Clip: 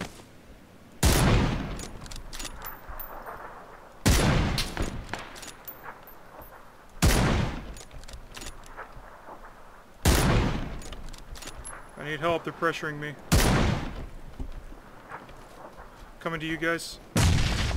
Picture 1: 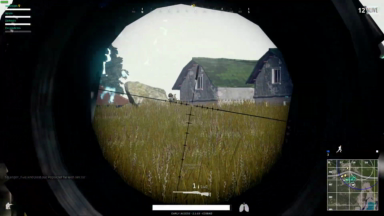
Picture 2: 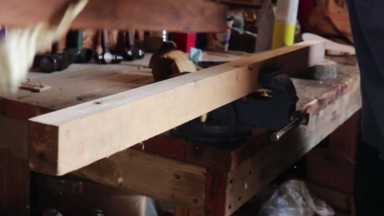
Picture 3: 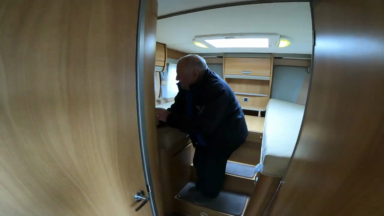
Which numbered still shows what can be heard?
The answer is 1